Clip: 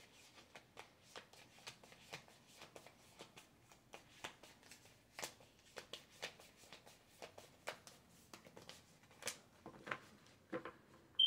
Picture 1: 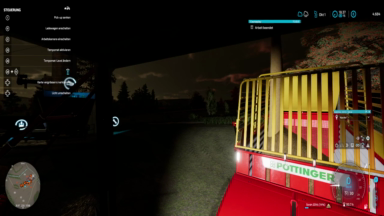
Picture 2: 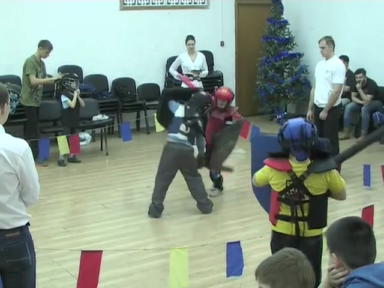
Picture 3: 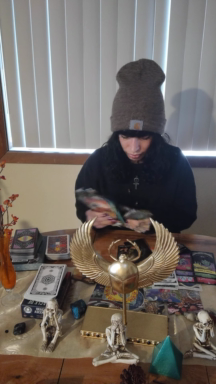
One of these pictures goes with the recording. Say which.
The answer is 3